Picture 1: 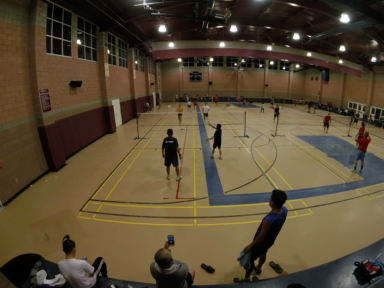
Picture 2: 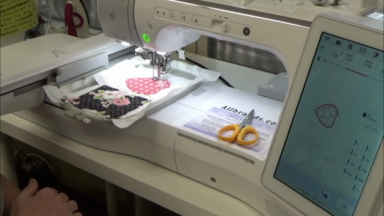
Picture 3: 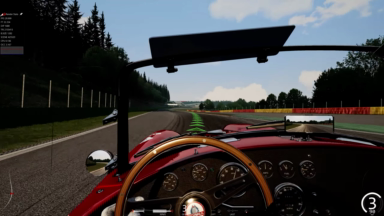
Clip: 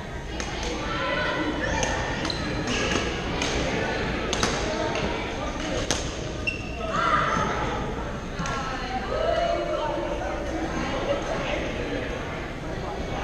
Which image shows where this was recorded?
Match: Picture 1